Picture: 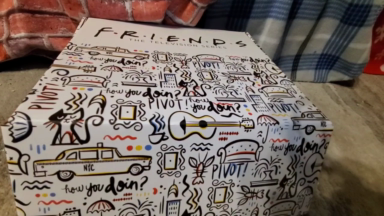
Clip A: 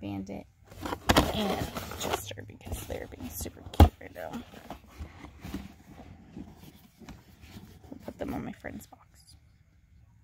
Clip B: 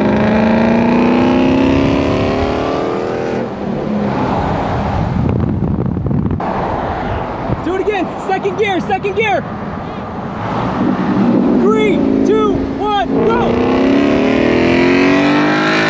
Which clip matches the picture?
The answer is A